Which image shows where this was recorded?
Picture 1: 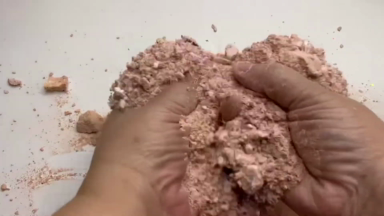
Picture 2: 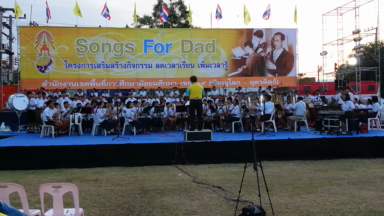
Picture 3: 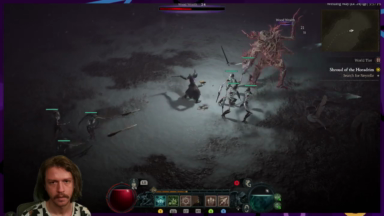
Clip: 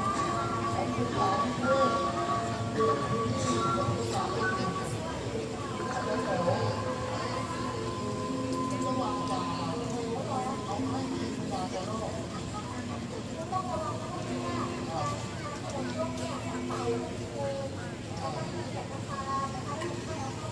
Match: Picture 2